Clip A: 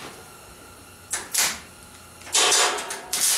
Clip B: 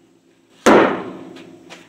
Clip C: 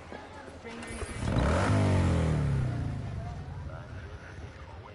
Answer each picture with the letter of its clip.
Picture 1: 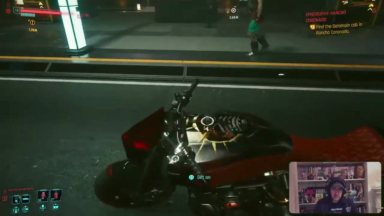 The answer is C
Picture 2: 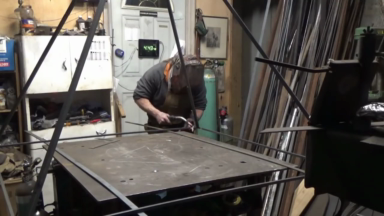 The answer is A